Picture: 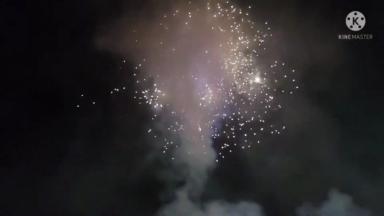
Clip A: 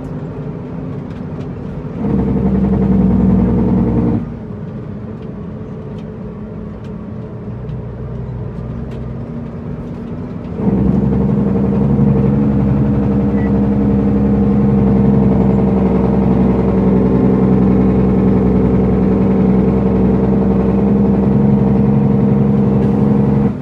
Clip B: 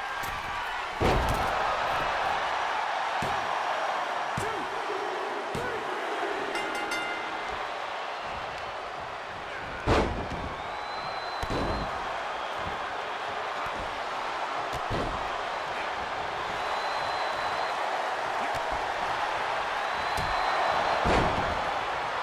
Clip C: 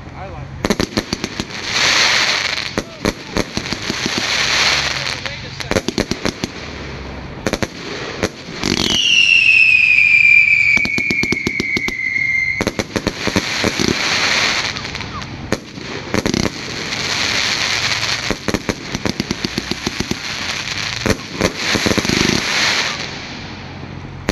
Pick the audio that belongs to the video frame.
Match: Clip C